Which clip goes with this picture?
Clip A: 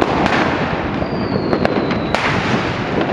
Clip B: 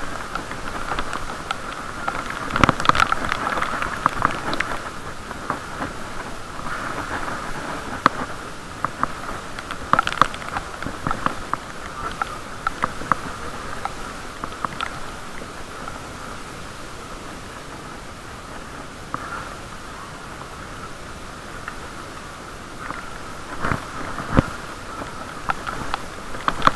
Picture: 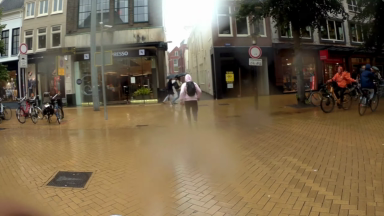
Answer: B